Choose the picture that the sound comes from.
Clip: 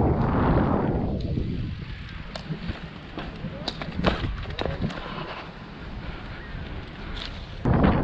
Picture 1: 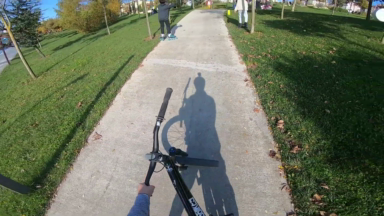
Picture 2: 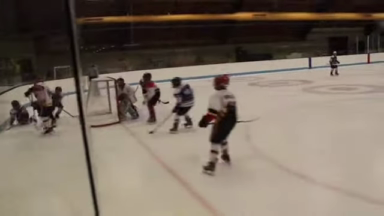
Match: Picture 1